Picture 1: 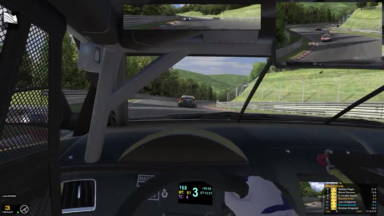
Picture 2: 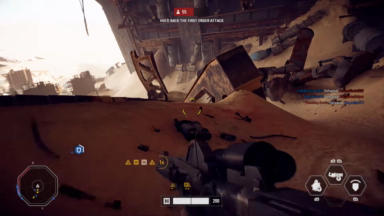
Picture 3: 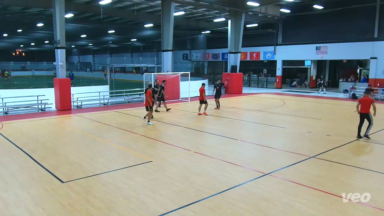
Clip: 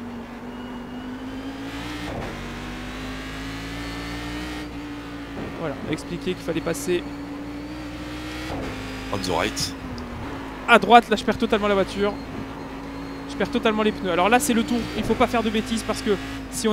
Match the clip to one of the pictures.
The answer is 1